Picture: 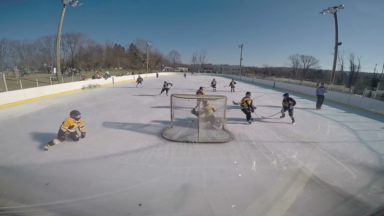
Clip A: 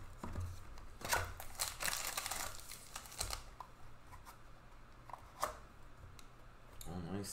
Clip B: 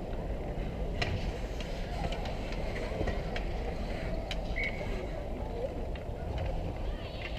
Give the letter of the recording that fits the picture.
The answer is B